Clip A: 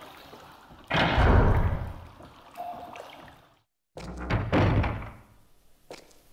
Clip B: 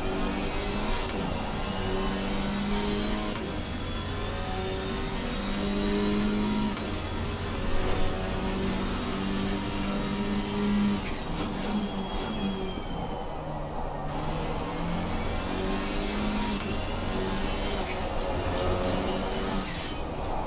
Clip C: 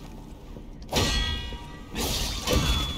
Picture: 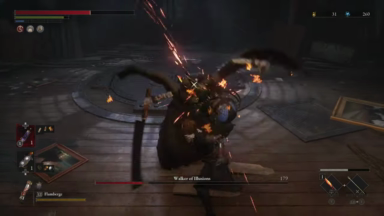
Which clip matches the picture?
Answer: C